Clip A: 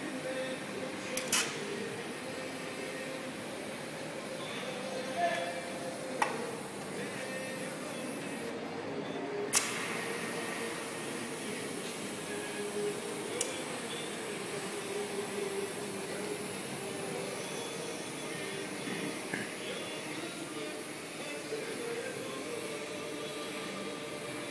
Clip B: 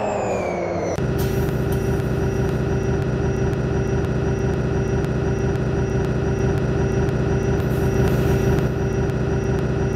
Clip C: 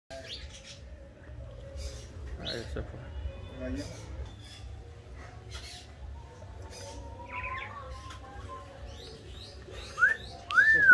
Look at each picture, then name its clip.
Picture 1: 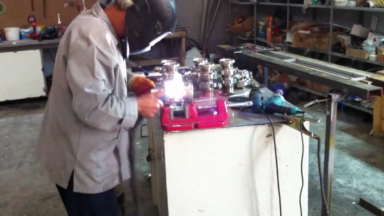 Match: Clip A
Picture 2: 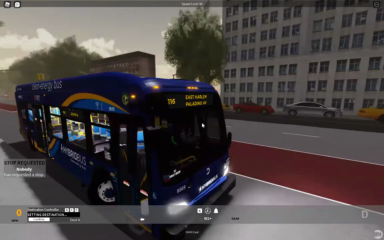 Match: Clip B